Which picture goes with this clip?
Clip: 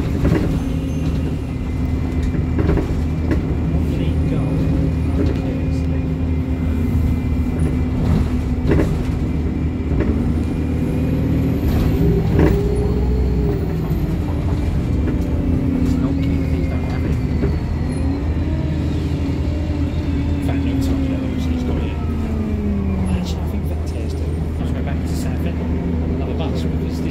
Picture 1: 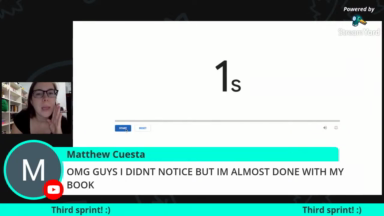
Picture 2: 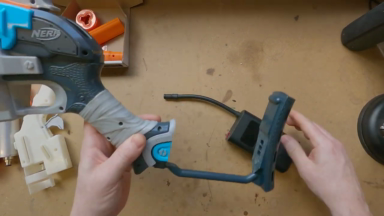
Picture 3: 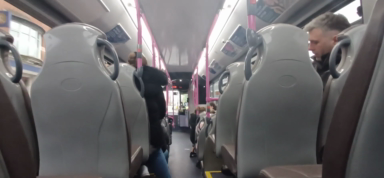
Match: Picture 3